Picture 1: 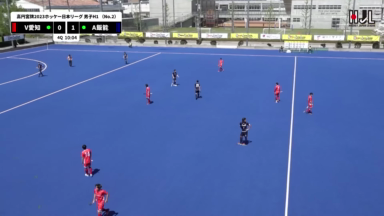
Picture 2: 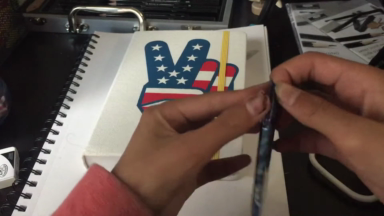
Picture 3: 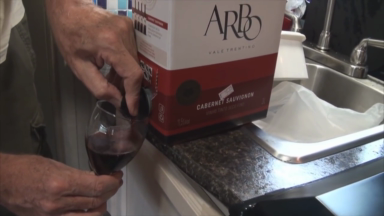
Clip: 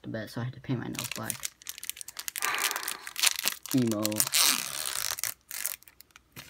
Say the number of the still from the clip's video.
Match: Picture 2